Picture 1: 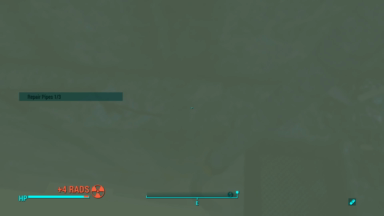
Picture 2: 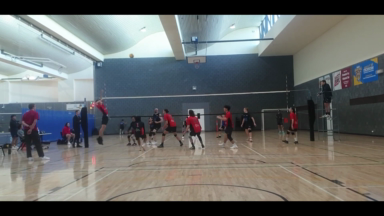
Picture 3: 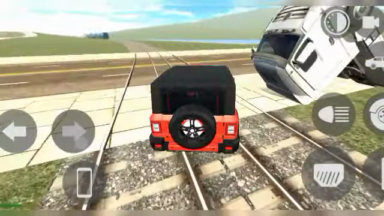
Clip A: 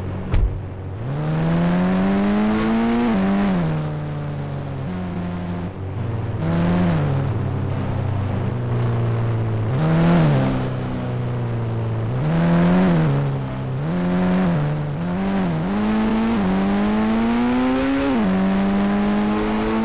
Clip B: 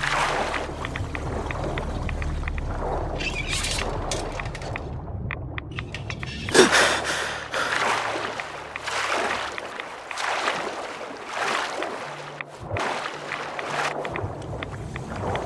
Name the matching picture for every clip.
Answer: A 3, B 1